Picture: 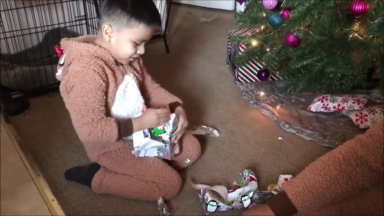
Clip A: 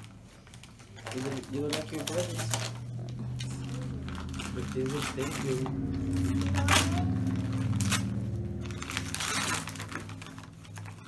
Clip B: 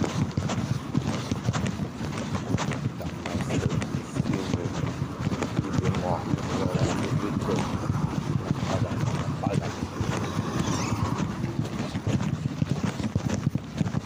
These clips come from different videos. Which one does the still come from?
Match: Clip A